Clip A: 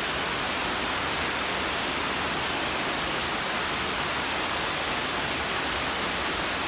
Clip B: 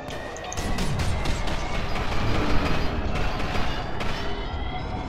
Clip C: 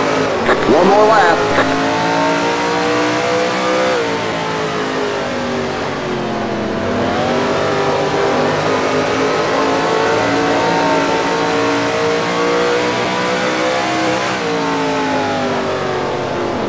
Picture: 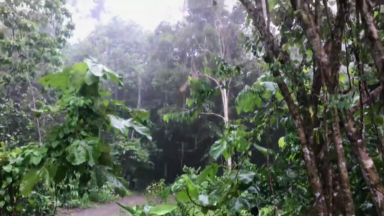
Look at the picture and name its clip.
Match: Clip A